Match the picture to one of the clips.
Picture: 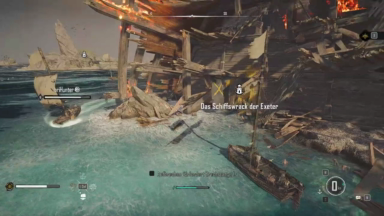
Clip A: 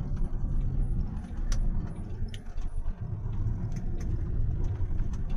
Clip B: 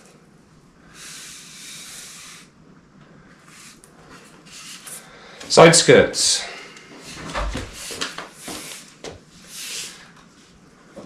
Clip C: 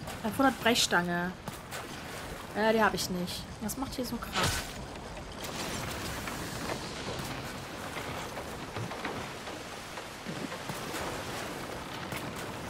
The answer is C